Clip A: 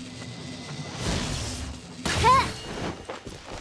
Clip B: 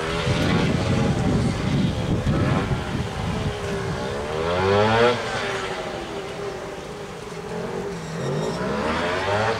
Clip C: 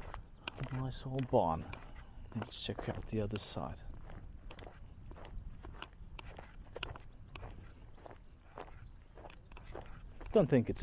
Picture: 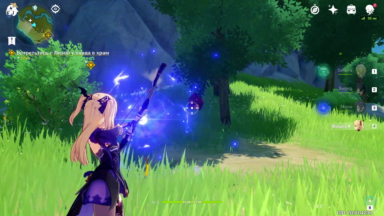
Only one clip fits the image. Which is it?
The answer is A